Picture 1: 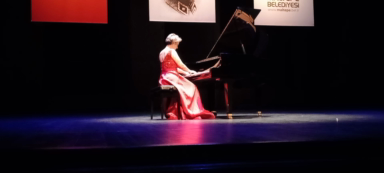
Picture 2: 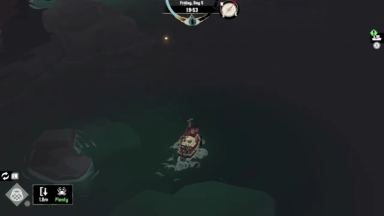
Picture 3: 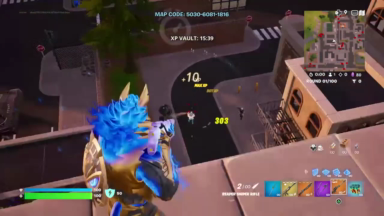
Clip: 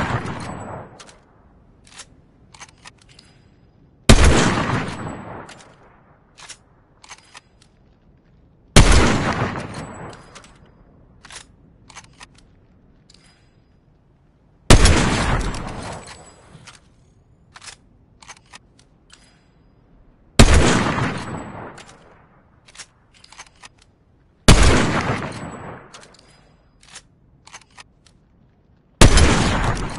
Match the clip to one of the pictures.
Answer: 3